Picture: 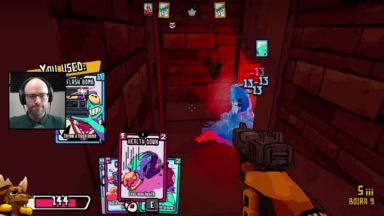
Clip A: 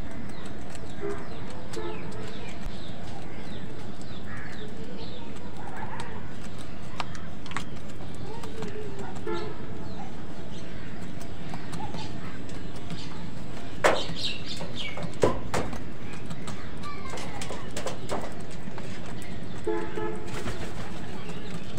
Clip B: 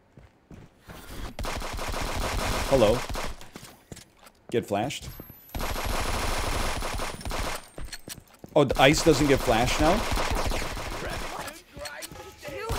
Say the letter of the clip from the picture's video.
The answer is B